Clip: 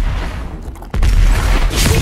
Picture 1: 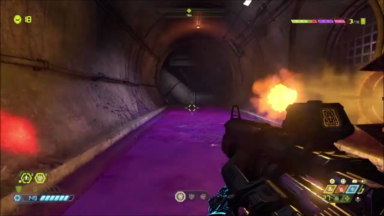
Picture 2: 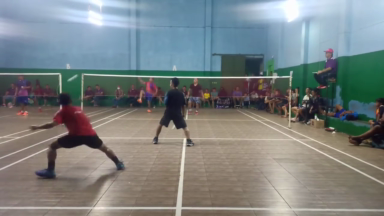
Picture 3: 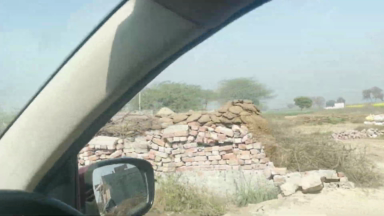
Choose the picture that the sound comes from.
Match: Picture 1